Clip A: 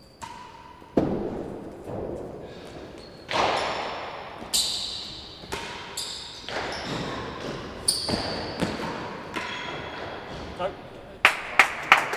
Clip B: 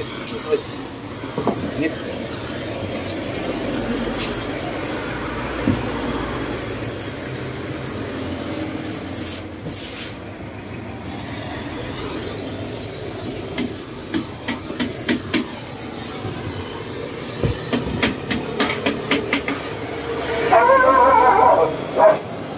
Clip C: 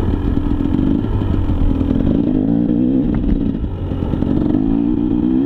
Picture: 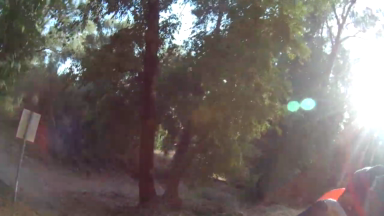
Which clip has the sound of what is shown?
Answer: C